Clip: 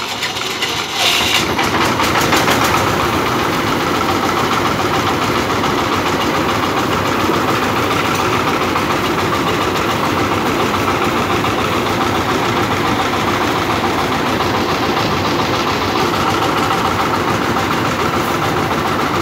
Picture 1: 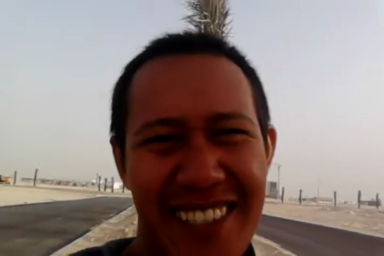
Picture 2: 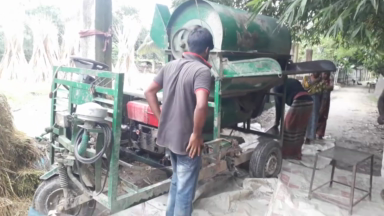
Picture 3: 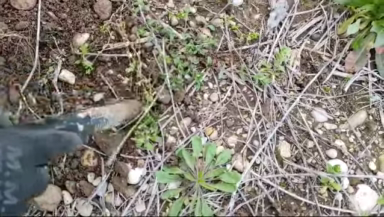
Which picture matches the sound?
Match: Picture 2